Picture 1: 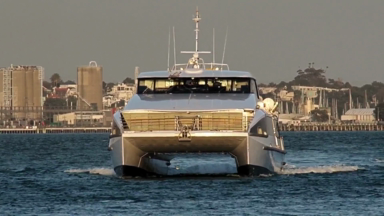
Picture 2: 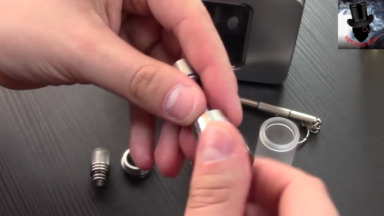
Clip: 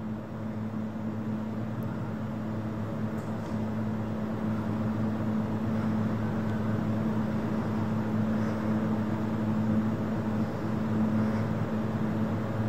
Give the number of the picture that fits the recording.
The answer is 1